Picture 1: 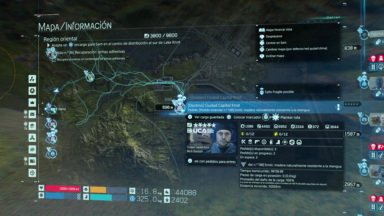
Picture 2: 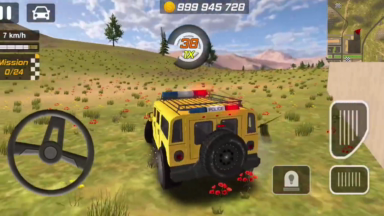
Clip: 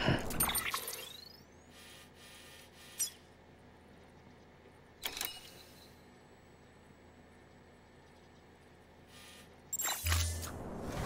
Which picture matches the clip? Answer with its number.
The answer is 1